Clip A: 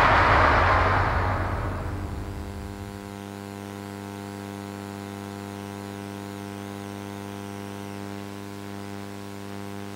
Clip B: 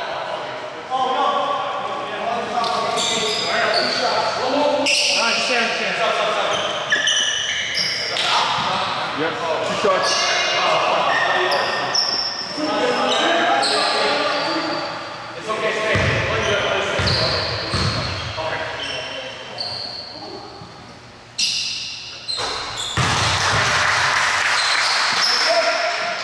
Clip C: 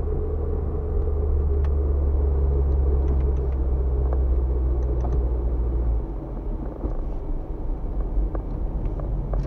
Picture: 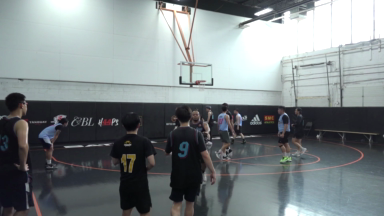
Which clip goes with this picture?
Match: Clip B